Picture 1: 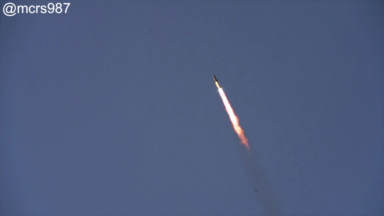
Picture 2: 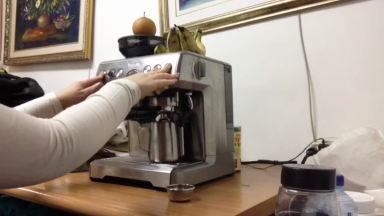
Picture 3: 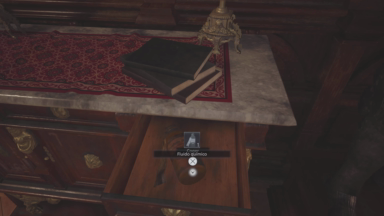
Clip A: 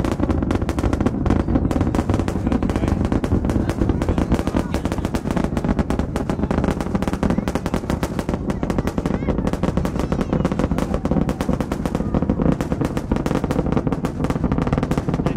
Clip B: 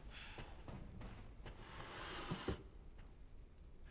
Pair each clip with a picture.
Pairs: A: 1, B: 3